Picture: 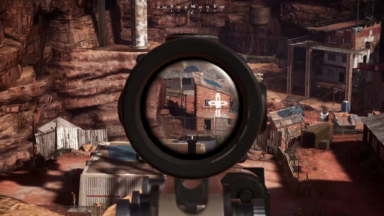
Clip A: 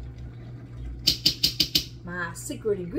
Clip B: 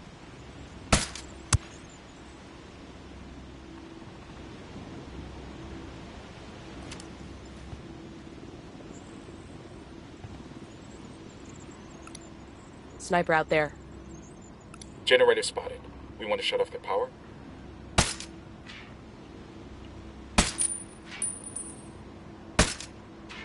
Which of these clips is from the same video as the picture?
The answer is B